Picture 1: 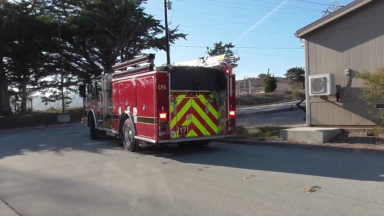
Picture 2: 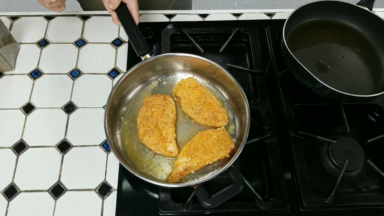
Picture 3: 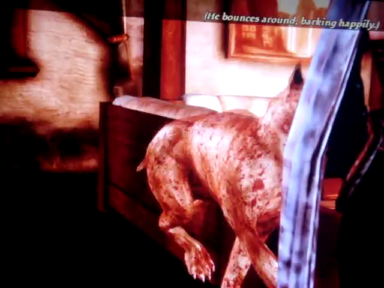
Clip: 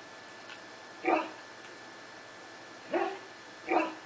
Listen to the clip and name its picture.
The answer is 3